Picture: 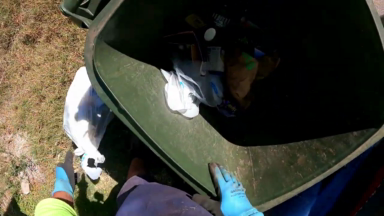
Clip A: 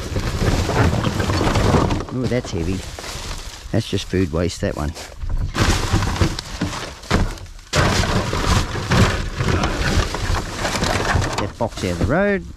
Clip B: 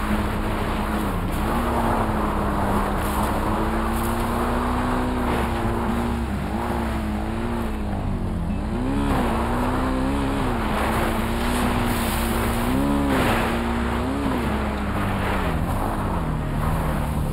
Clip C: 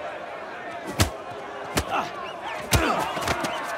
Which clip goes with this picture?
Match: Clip A